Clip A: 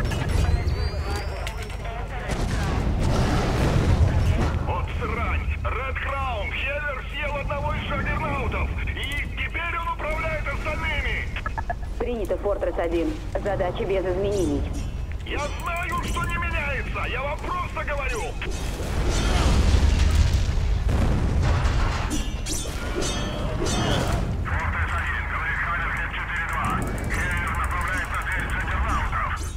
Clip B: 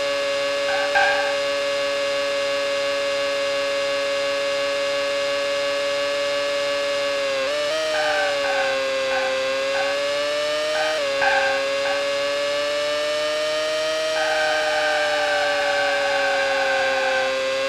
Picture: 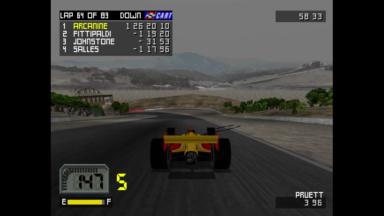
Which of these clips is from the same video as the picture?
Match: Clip B